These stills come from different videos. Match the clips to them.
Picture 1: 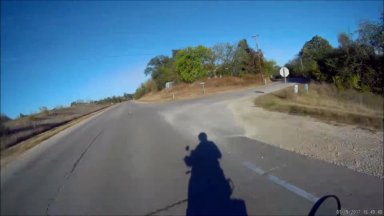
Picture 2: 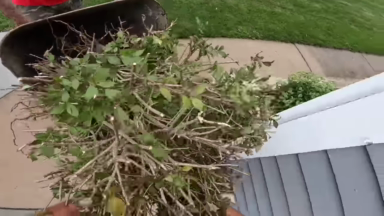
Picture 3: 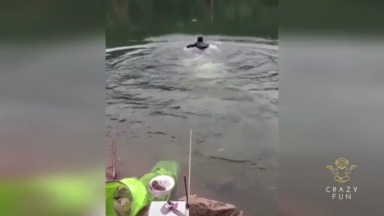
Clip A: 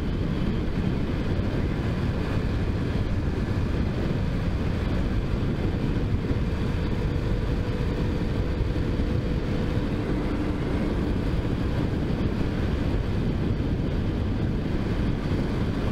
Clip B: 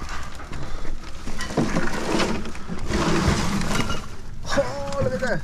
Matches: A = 1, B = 2